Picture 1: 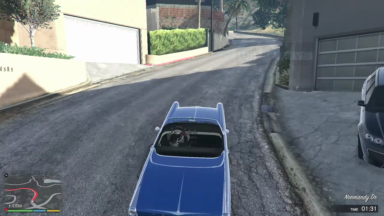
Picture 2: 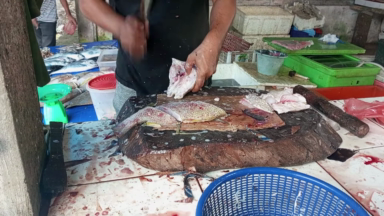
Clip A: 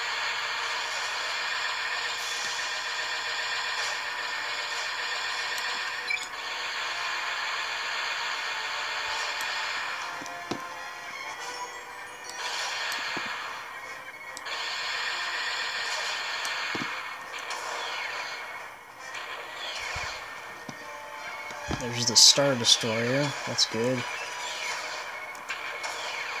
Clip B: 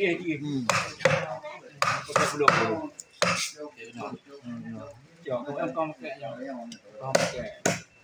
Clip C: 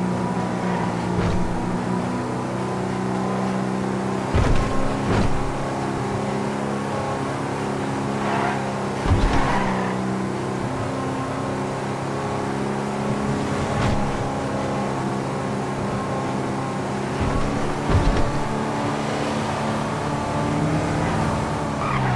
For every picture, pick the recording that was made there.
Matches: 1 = C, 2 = B